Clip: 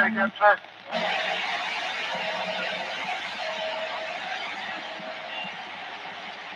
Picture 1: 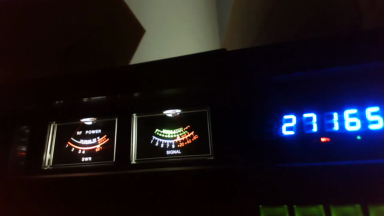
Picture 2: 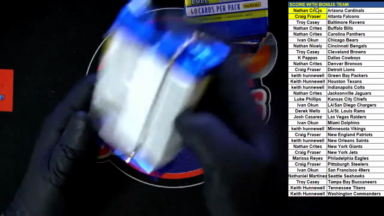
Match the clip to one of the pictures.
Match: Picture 1